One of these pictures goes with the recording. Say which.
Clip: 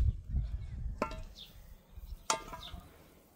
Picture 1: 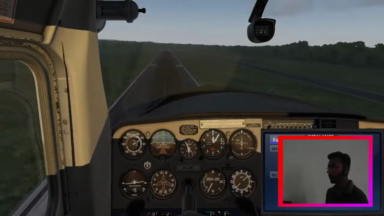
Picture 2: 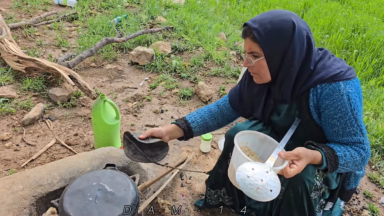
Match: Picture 2